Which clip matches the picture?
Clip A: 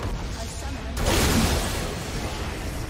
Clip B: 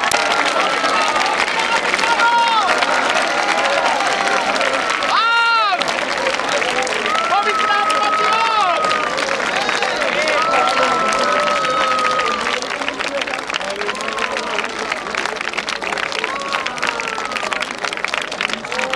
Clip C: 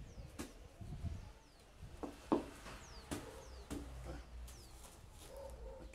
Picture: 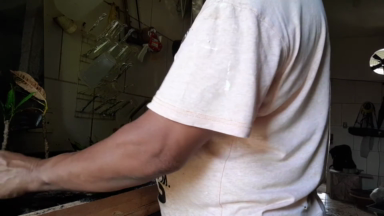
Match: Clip C